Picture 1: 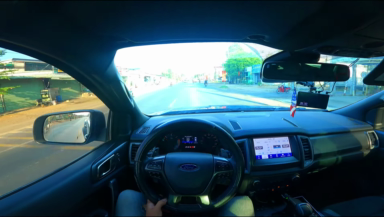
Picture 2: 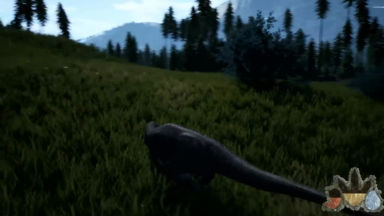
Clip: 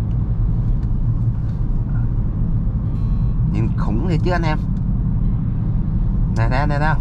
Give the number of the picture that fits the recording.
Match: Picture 1